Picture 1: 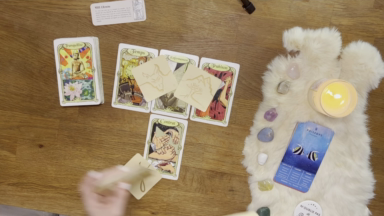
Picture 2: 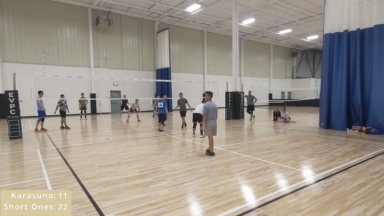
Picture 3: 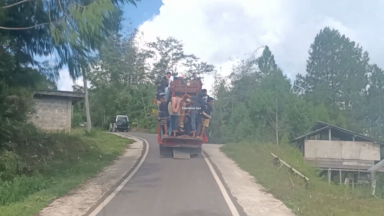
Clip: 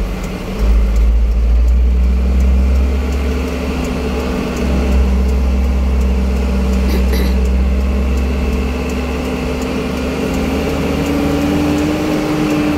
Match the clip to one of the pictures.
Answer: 3